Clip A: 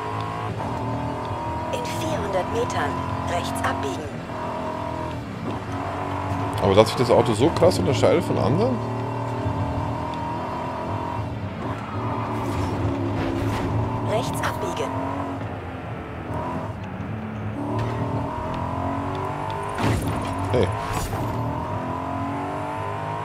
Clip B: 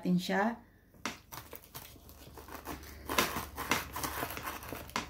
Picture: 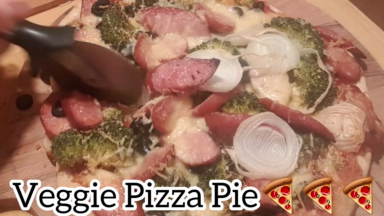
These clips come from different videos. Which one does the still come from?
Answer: B